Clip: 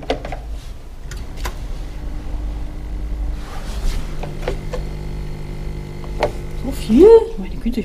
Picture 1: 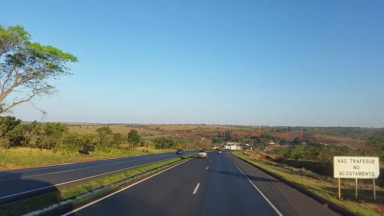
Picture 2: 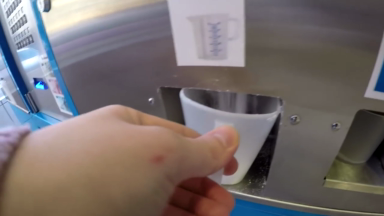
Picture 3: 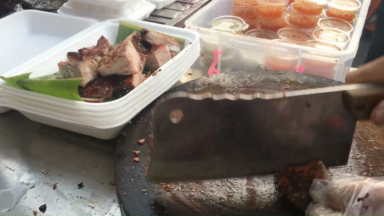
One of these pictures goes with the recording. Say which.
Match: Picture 2